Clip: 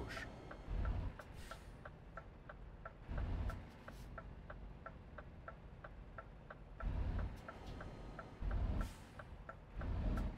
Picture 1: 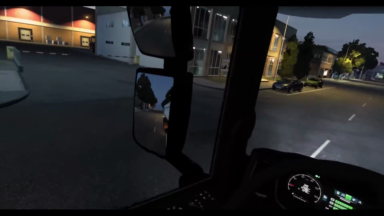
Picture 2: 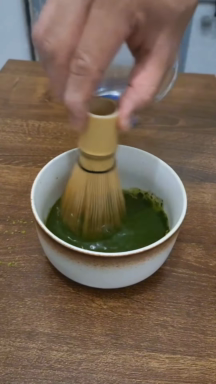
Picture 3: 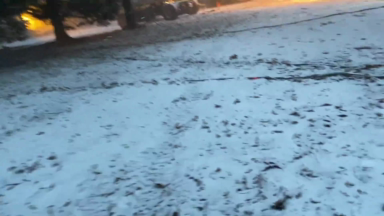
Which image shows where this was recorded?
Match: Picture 1